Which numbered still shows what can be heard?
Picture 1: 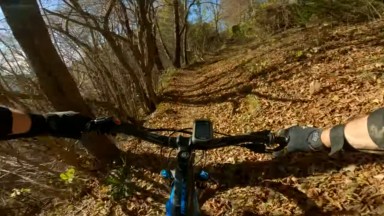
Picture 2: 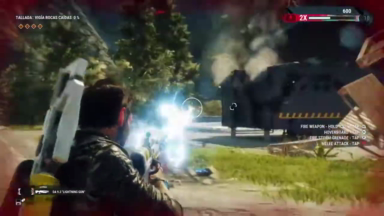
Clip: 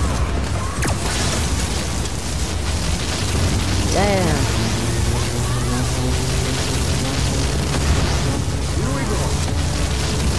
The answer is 2